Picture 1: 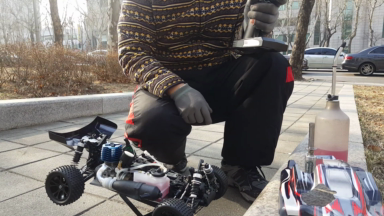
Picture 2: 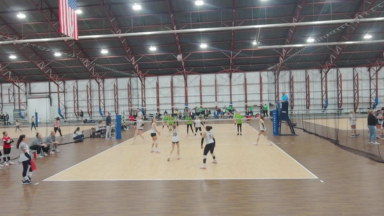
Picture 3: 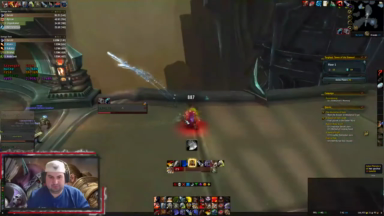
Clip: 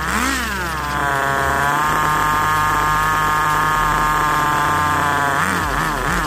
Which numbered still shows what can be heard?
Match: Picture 1